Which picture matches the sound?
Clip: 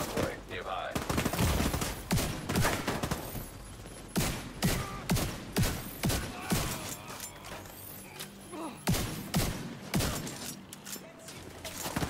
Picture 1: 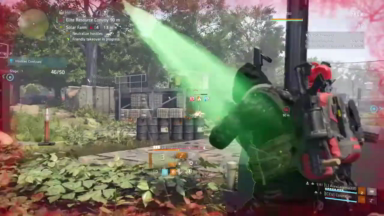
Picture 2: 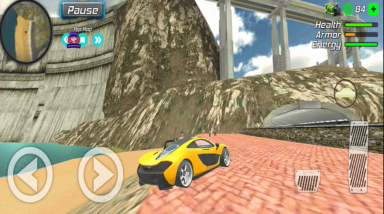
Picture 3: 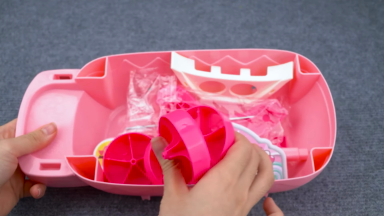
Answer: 1